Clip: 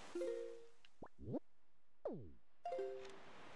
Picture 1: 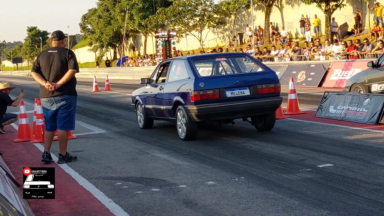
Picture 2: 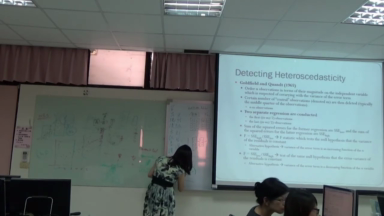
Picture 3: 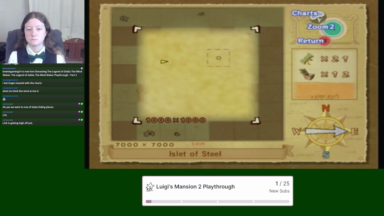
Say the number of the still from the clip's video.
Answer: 3